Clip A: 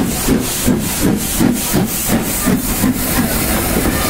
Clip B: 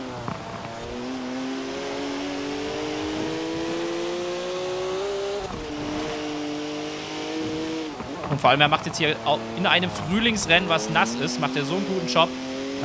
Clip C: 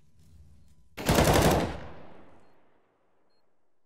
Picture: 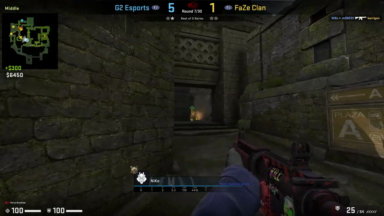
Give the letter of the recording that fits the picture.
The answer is C